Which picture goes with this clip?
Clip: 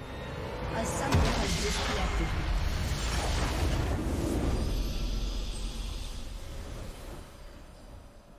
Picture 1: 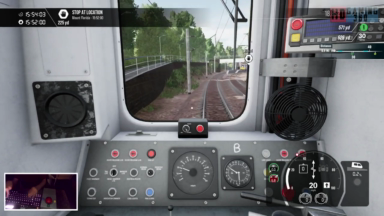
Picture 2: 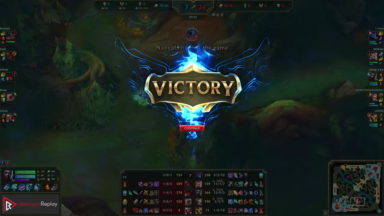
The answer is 2